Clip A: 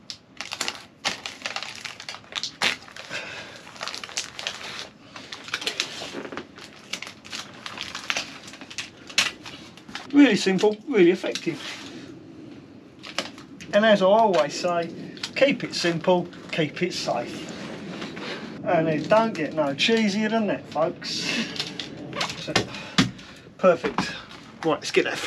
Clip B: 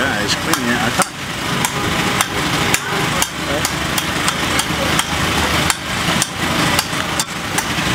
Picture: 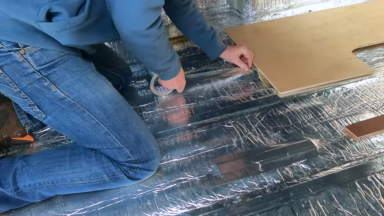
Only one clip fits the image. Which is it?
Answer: A